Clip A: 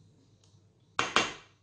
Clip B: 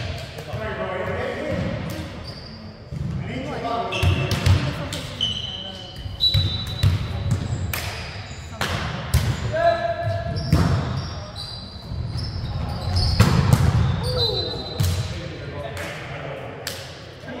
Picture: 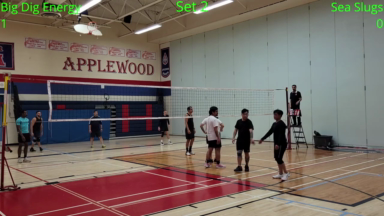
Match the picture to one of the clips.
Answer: B